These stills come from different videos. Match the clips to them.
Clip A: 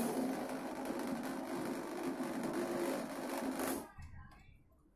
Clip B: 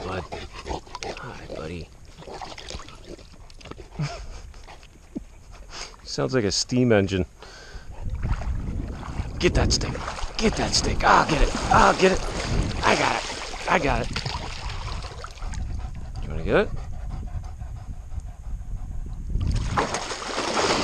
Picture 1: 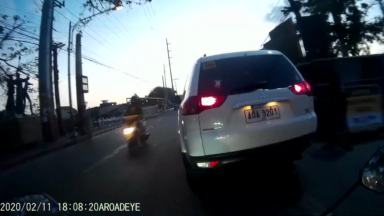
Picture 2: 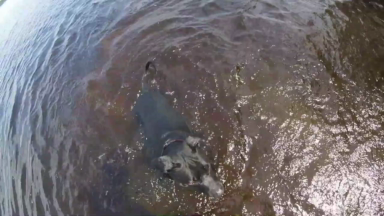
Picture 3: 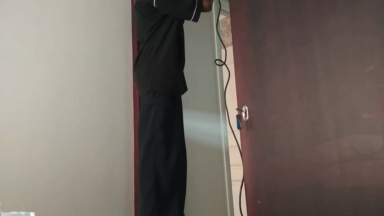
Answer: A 3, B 2